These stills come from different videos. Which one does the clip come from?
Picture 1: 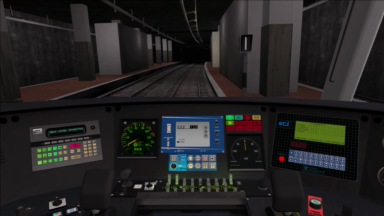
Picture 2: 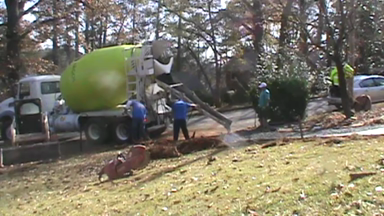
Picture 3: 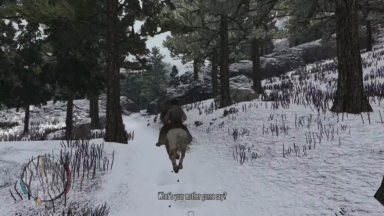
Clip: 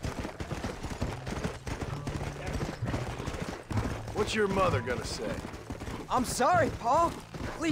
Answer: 3